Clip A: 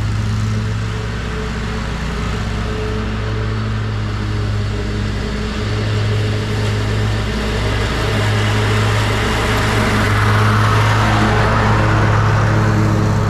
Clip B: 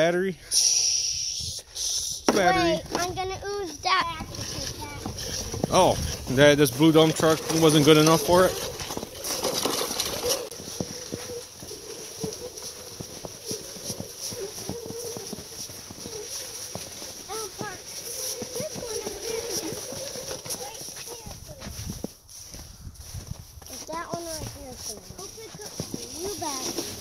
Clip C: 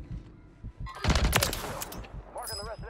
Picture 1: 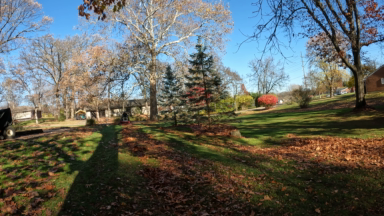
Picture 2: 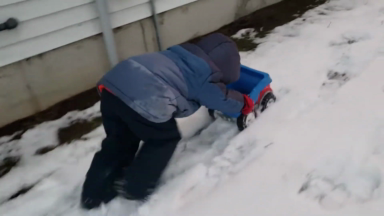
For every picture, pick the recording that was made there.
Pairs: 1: A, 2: B